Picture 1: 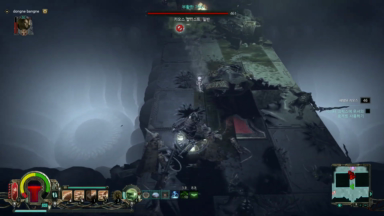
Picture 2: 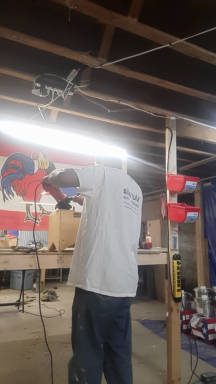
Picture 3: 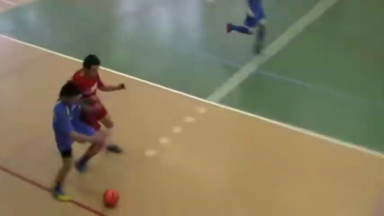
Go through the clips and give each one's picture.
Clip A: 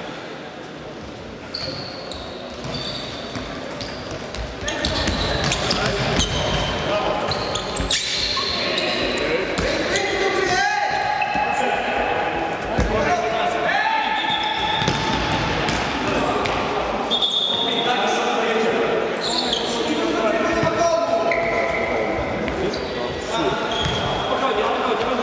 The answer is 3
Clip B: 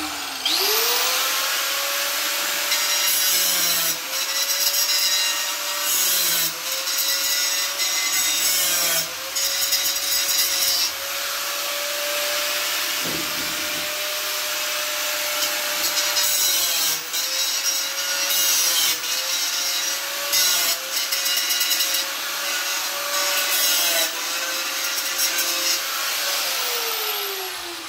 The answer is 2